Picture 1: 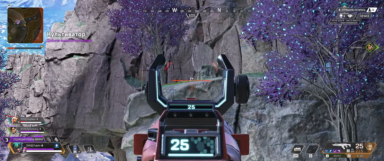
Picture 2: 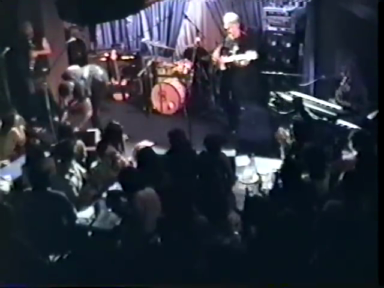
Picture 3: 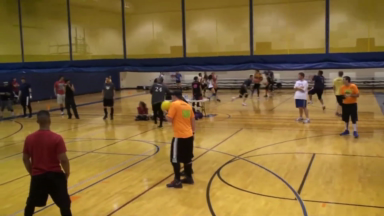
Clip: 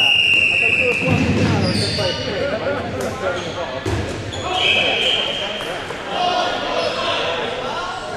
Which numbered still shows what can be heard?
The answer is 3